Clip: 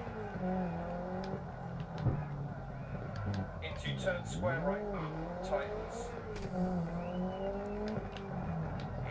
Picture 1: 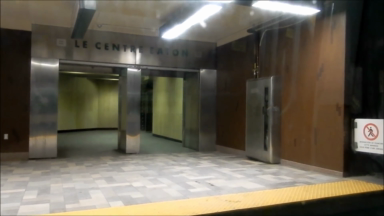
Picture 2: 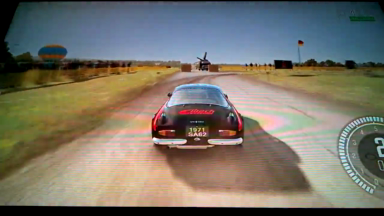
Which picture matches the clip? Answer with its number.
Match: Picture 2